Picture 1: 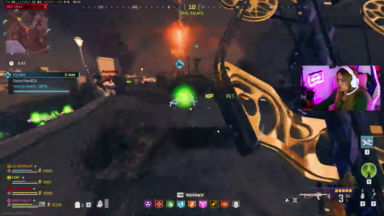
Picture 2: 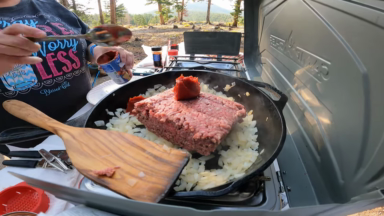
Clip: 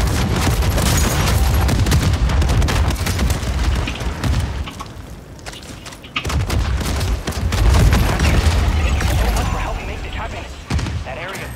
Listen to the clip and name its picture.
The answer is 1